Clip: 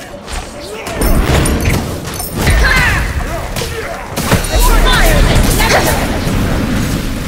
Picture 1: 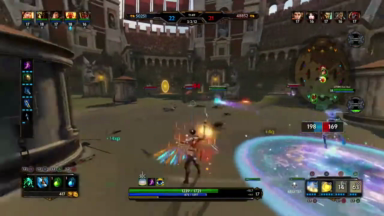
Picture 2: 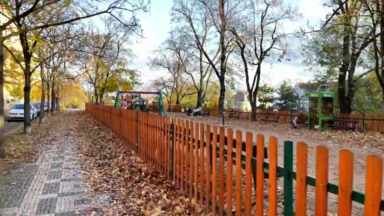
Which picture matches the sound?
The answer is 1